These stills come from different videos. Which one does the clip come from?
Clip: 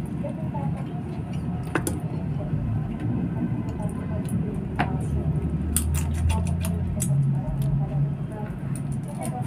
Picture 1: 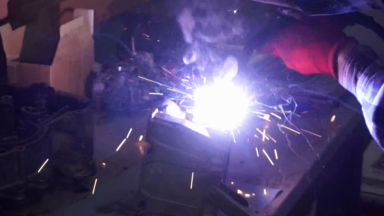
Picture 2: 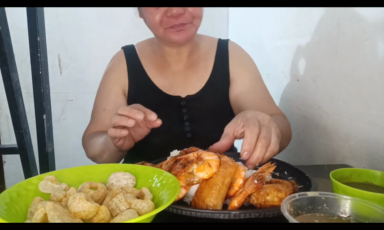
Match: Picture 2